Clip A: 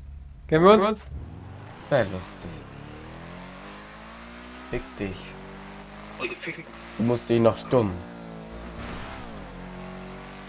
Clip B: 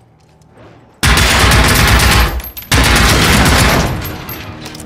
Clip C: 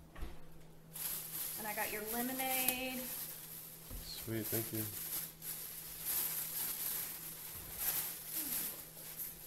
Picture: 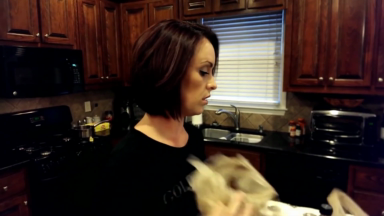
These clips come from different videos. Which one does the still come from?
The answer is C